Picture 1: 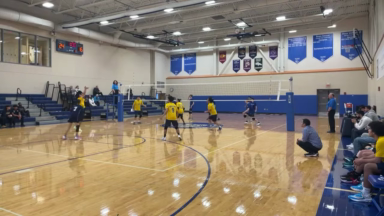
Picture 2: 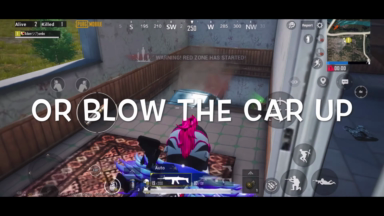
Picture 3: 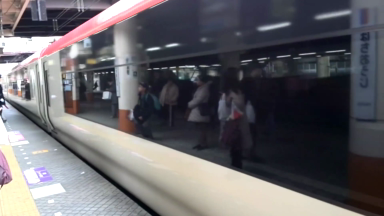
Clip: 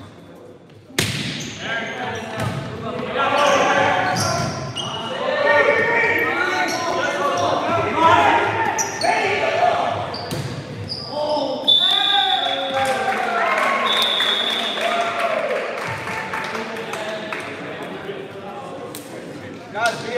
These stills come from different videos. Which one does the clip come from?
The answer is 1